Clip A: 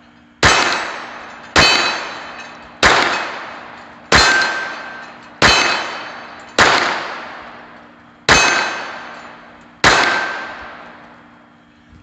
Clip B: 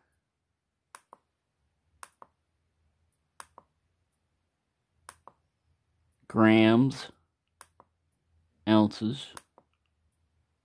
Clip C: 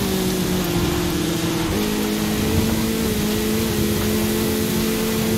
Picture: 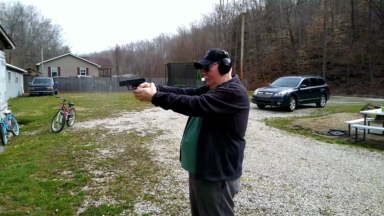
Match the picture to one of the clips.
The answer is A